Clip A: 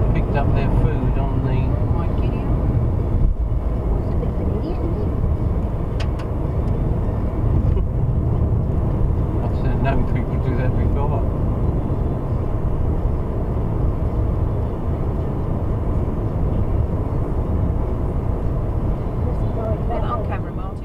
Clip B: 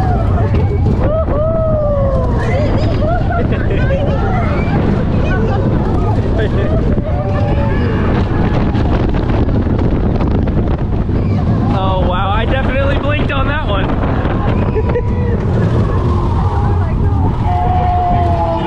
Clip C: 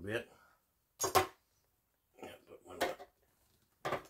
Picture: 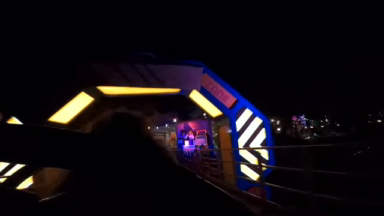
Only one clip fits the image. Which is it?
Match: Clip B